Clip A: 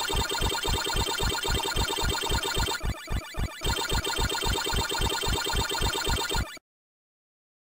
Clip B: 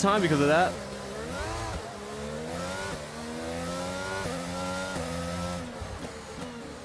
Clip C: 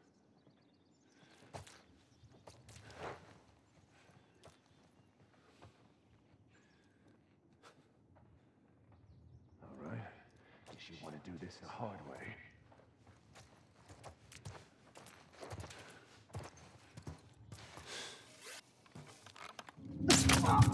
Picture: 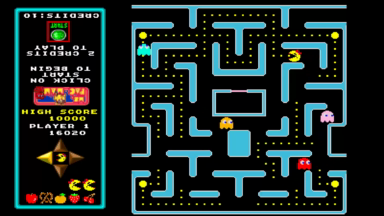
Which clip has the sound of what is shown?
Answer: A